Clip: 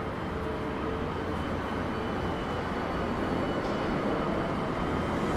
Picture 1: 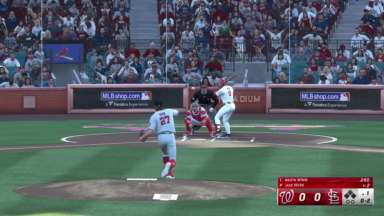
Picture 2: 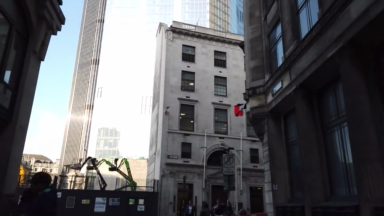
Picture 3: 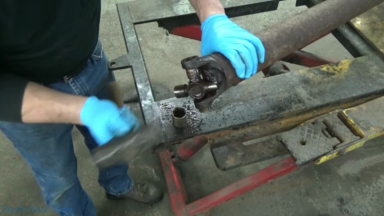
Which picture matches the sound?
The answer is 2